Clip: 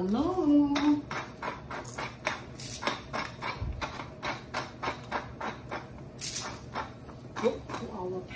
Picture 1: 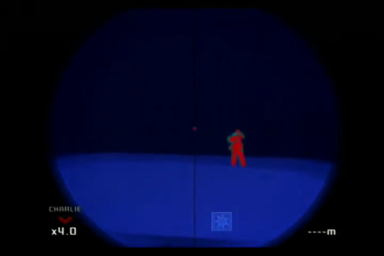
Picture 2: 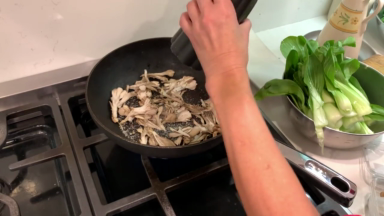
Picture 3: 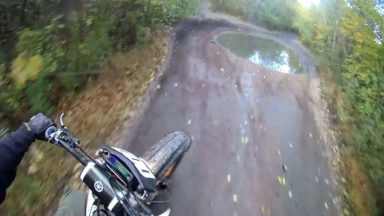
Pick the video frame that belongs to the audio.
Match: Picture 2